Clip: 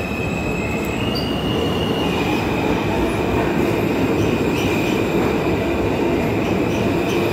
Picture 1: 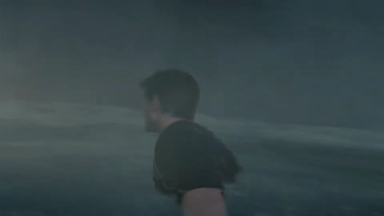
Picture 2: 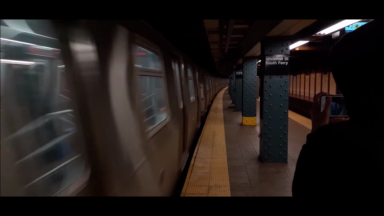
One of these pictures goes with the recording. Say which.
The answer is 2